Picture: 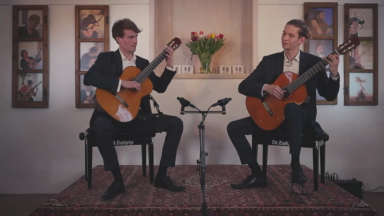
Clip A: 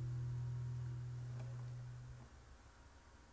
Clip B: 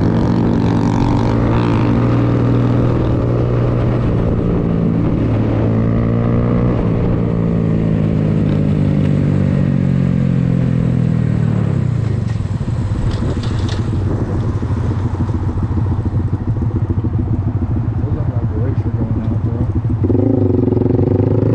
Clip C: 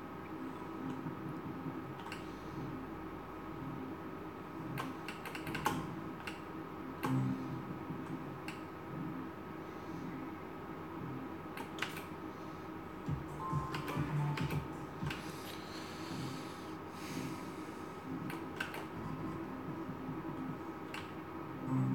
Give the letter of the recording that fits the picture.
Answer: A